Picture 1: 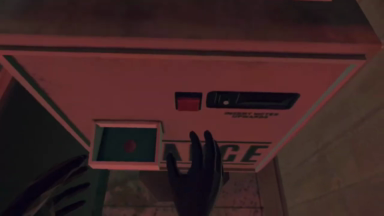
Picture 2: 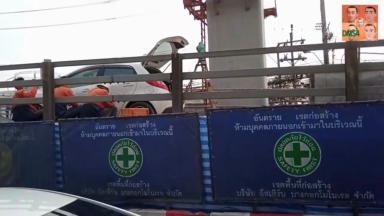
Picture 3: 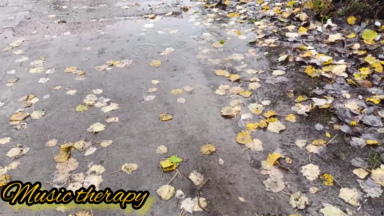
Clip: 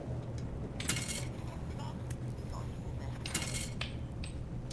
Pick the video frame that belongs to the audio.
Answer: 1